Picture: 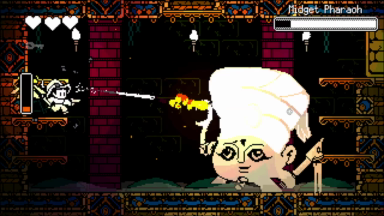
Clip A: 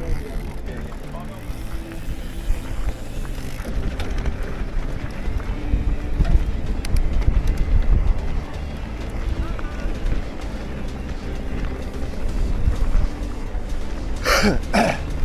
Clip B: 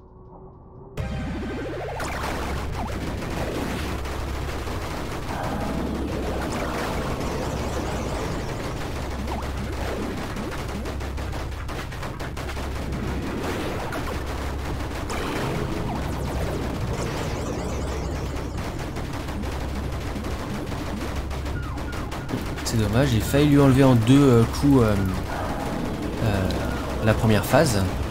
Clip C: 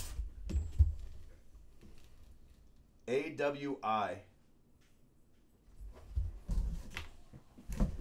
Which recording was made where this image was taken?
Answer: B